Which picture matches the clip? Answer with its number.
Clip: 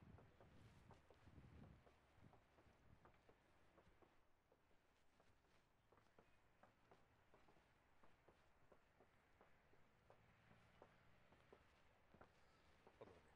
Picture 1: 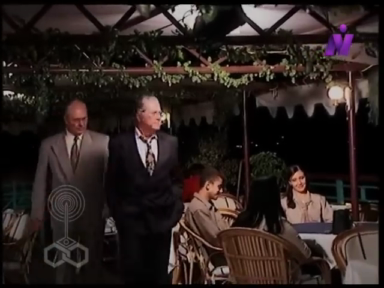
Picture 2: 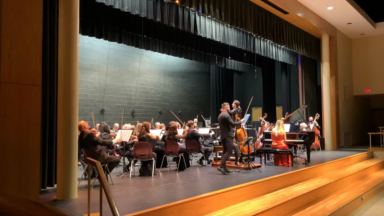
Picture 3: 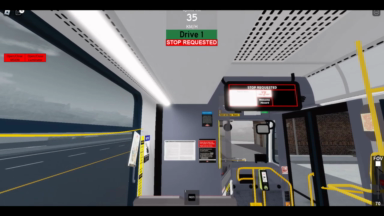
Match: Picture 1